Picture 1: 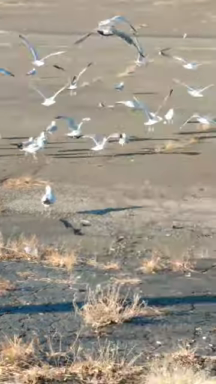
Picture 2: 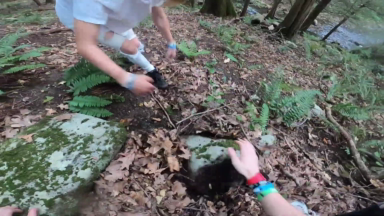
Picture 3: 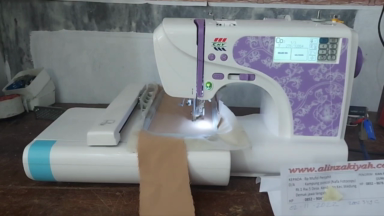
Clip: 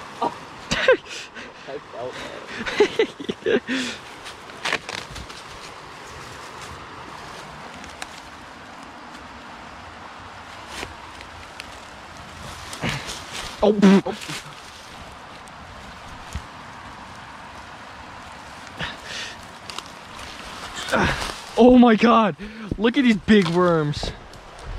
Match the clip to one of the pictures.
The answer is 2